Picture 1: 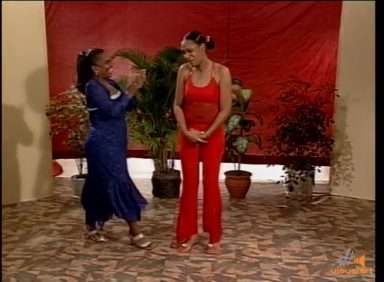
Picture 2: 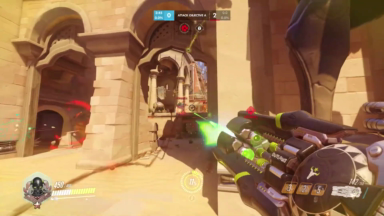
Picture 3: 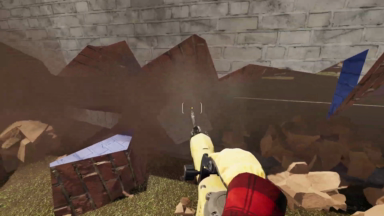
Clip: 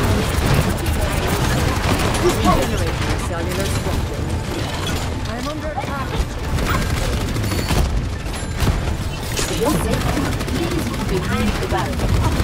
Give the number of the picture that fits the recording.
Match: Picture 2